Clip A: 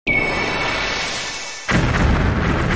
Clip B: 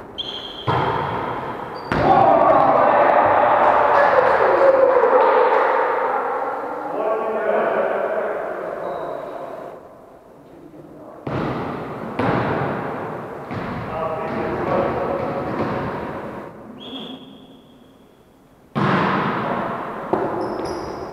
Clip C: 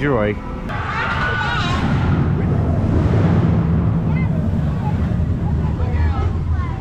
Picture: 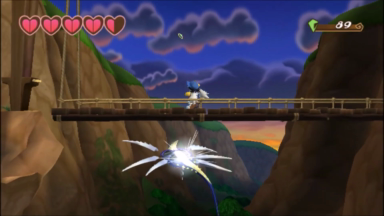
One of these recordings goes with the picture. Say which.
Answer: A